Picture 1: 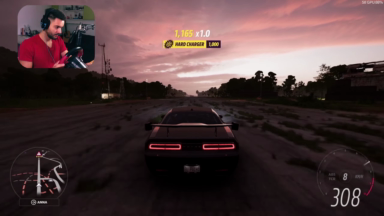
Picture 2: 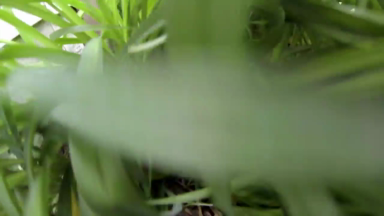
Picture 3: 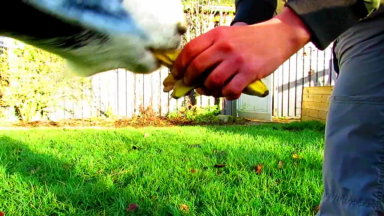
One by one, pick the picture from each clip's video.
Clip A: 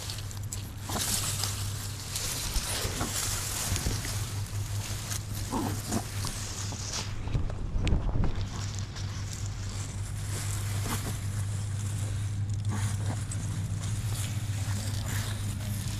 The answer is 2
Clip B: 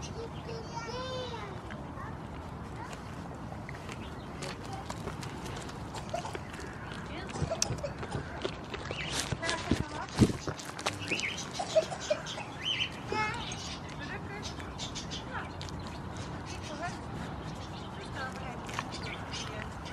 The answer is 3